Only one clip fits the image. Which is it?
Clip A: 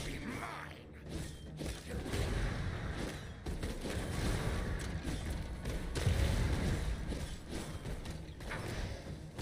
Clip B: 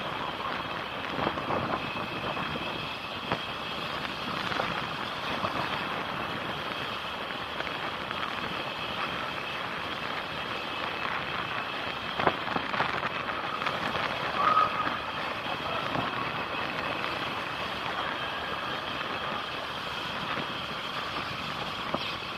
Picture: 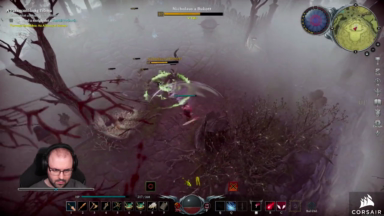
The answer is A